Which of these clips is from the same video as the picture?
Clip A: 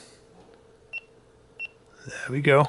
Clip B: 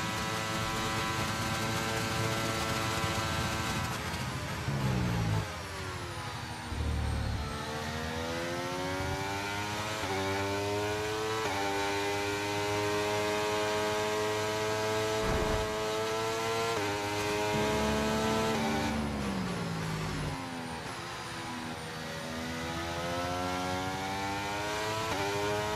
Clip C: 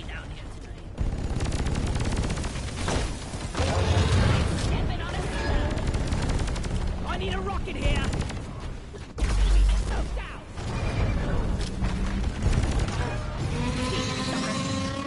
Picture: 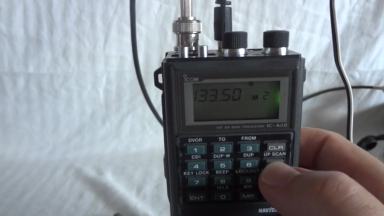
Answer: A